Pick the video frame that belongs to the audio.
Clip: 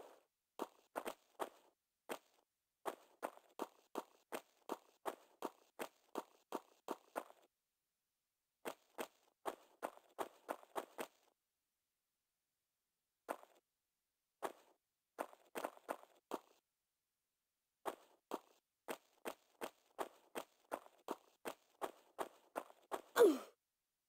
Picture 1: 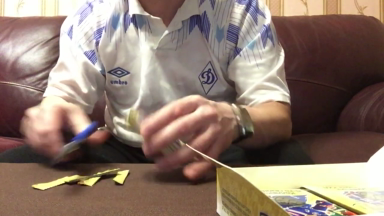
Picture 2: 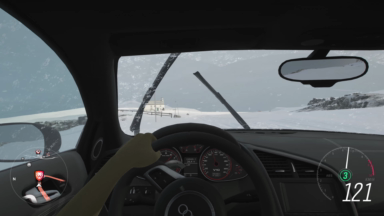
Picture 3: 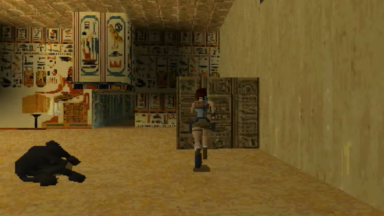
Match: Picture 3